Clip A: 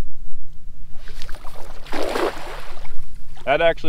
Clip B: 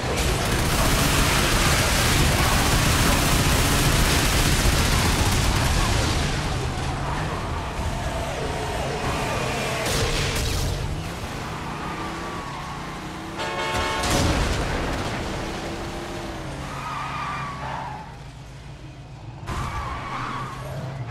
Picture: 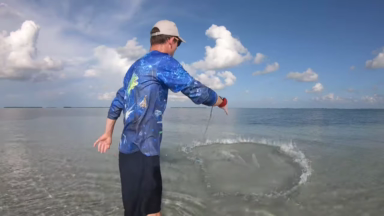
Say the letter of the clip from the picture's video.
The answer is A